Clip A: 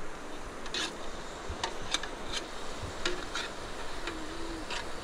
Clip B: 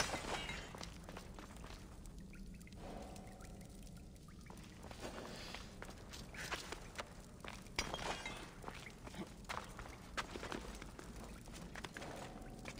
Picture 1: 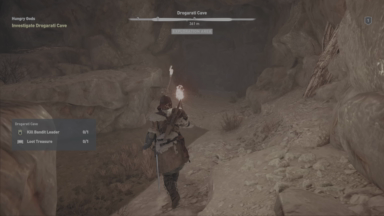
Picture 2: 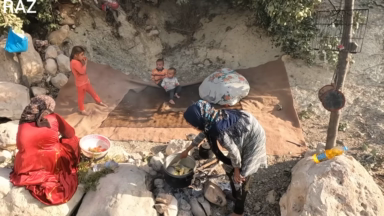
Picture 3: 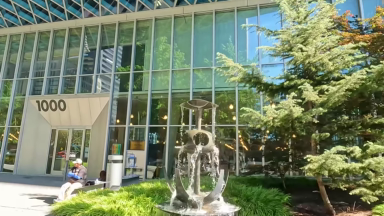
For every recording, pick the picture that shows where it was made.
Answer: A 2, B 1